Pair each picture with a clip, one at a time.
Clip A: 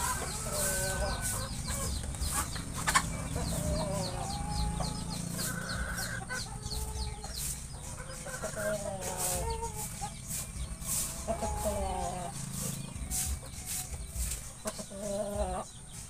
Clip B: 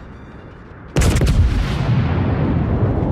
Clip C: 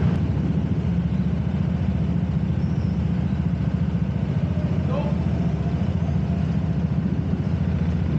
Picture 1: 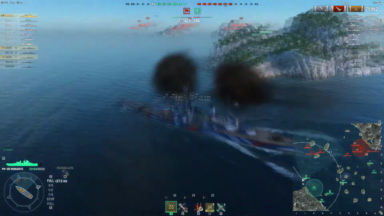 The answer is B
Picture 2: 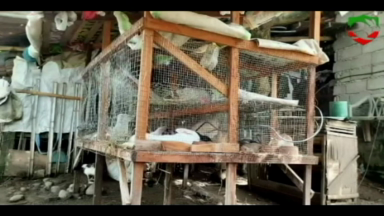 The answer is A